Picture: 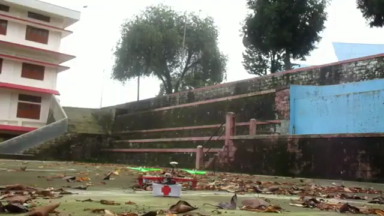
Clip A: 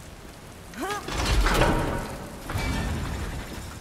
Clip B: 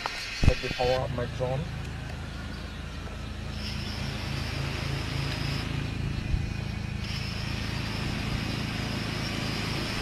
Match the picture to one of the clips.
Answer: B